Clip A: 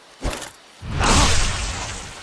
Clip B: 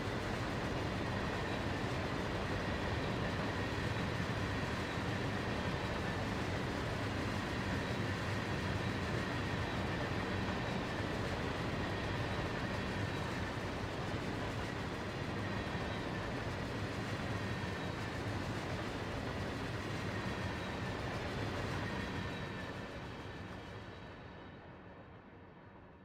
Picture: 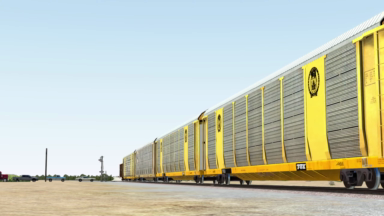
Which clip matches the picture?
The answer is B